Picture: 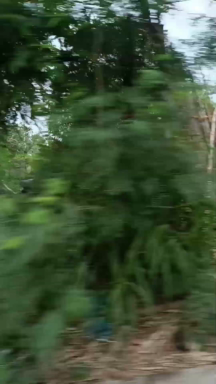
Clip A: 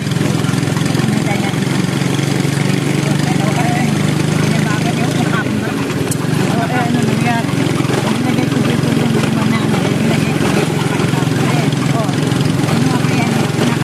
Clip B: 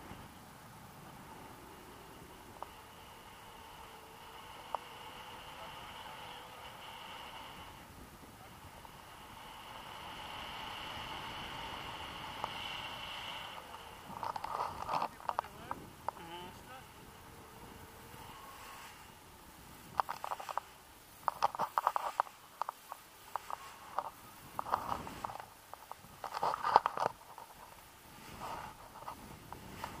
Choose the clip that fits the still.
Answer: A